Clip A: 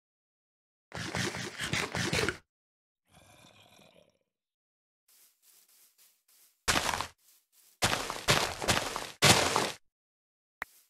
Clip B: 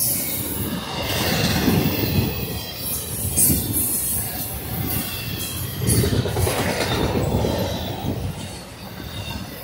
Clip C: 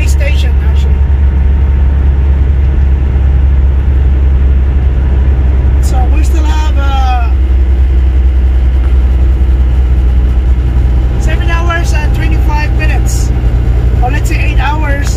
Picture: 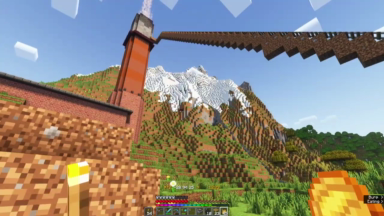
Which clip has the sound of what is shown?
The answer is A